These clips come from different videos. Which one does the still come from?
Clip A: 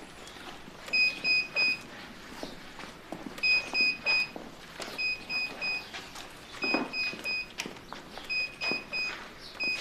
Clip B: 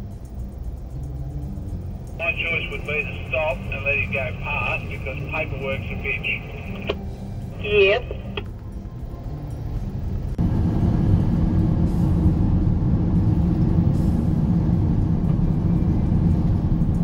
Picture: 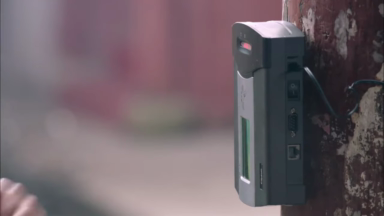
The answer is A